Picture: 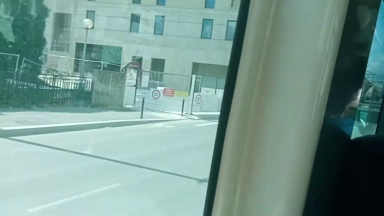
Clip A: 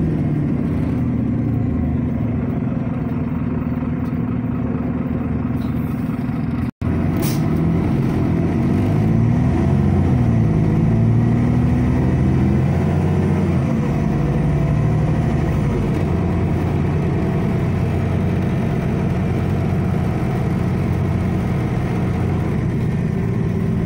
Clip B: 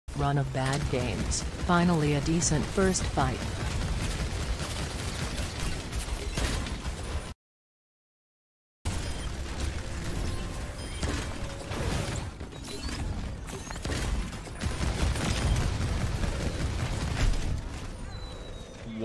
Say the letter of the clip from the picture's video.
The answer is A